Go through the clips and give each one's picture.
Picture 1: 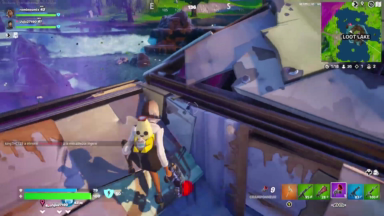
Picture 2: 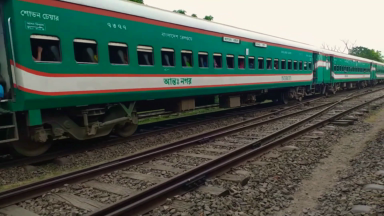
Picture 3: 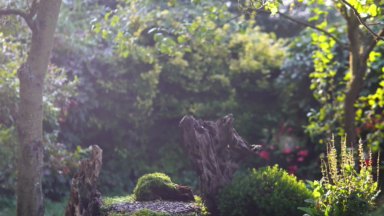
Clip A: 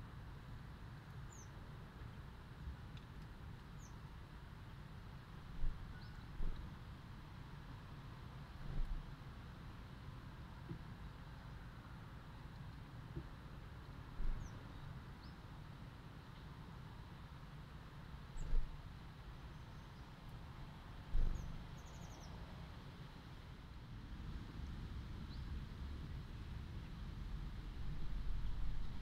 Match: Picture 3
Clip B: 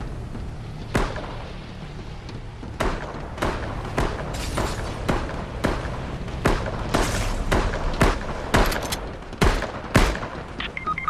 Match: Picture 1